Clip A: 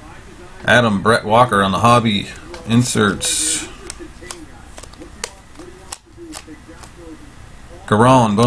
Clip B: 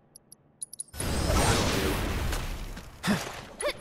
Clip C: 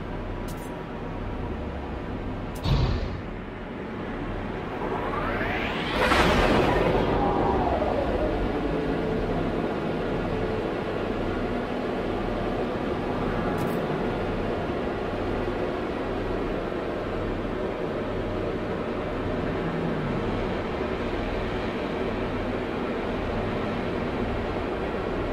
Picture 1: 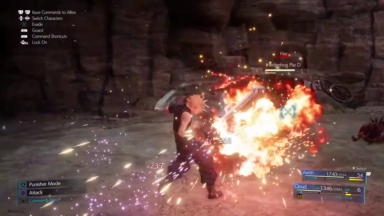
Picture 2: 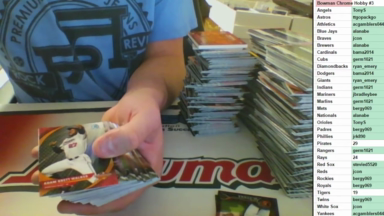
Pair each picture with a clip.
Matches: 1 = B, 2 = A